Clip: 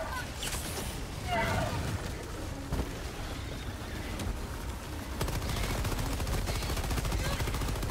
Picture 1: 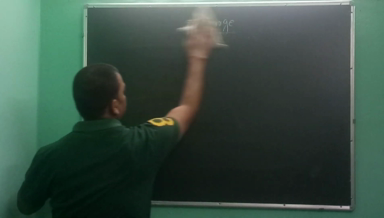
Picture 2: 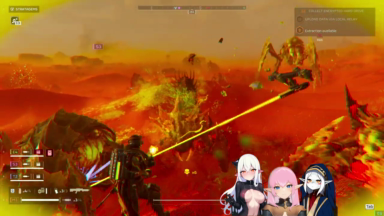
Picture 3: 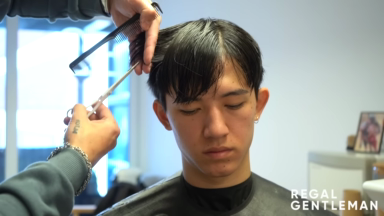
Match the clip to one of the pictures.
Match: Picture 2